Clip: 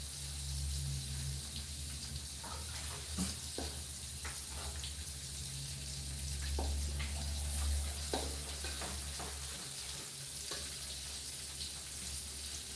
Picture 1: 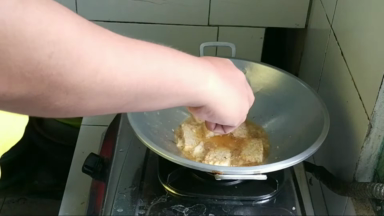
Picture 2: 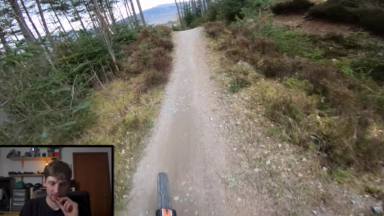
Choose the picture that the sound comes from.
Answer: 1